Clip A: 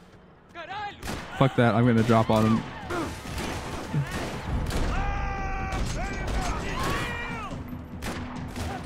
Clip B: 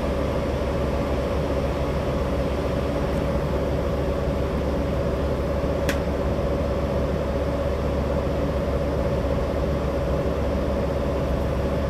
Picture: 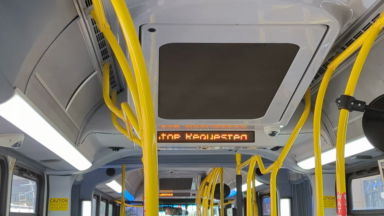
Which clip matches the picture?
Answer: B